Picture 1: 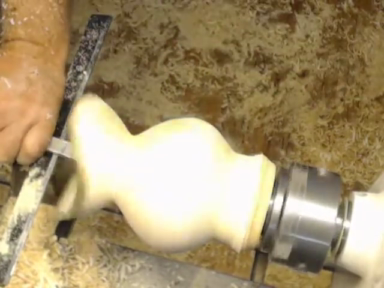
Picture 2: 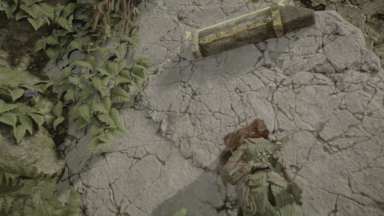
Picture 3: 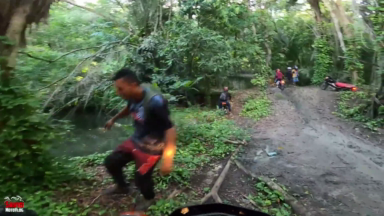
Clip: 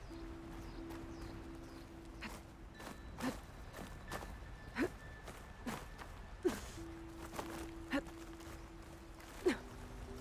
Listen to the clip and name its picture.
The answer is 2